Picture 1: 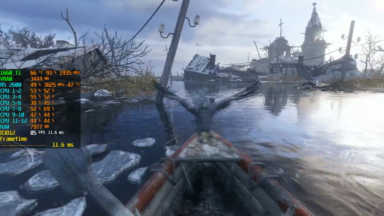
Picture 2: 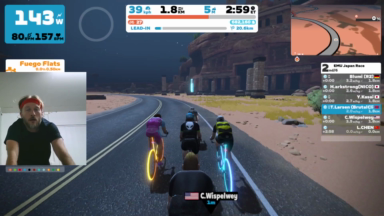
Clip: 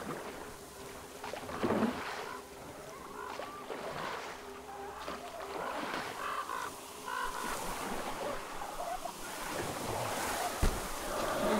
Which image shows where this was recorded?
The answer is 1